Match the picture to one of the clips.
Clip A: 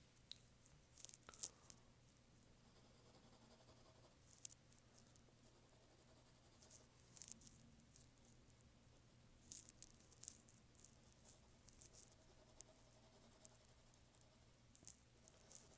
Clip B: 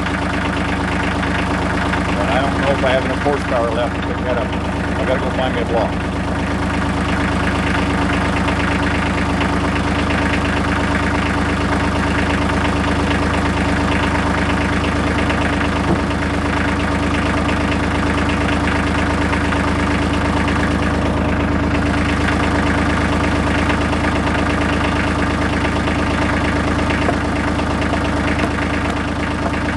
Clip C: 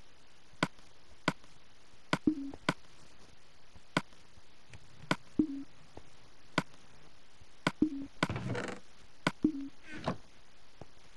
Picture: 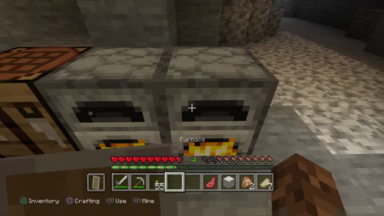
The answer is C